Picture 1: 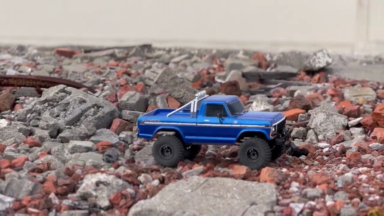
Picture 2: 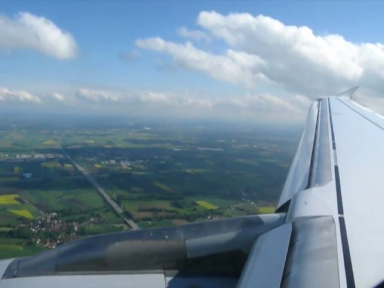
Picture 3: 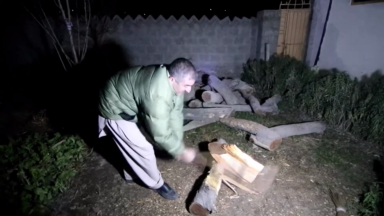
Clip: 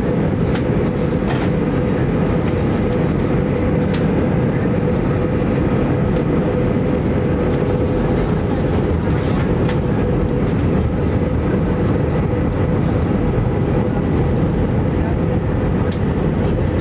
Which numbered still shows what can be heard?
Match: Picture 2